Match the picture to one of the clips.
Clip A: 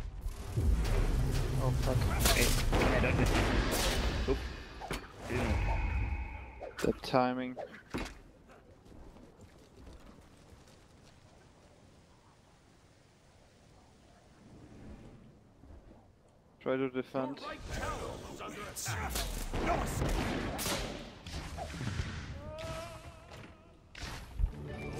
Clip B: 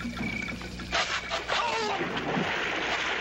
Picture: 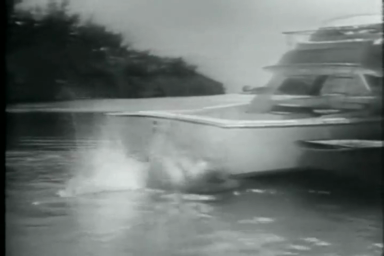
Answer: B